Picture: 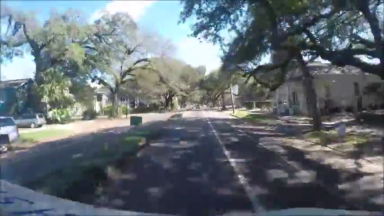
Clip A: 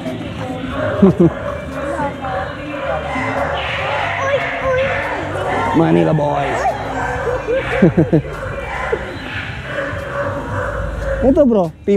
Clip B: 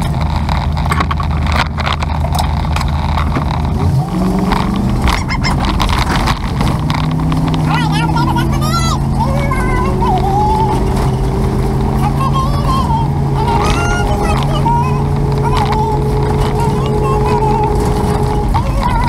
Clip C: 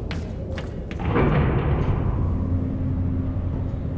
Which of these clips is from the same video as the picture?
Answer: B